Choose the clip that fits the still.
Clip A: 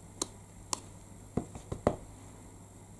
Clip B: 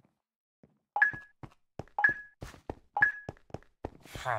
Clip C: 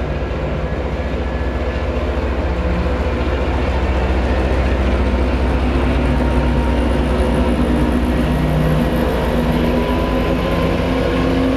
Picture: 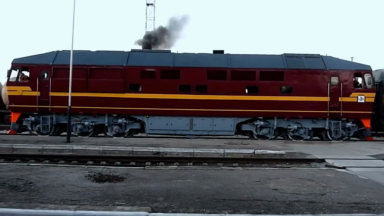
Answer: C